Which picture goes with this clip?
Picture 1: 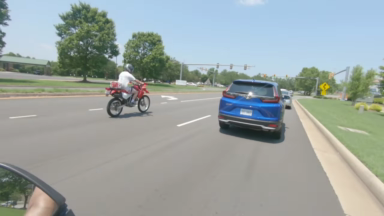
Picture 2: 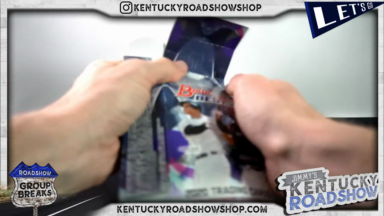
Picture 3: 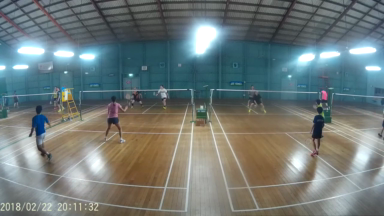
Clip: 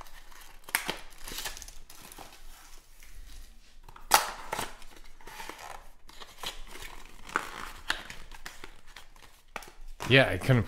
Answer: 2